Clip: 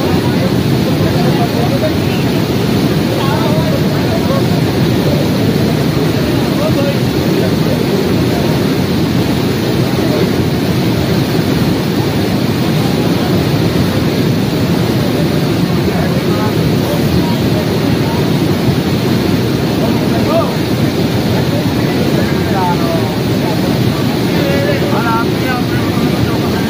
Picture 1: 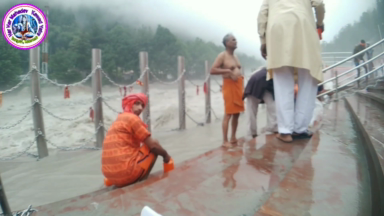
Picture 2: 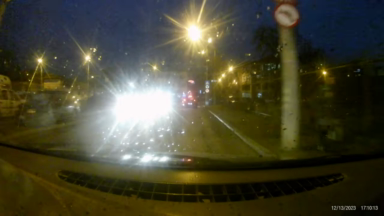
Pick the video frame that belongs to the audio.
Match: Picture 1